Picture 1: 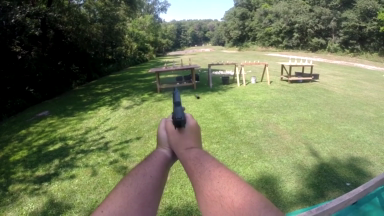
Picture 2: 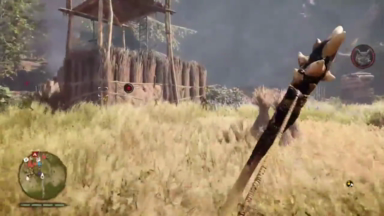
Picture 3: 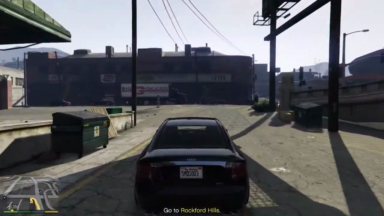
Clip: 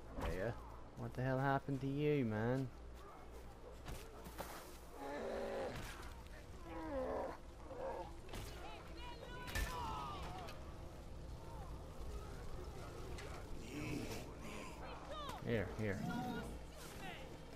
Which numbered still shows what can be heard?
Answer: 2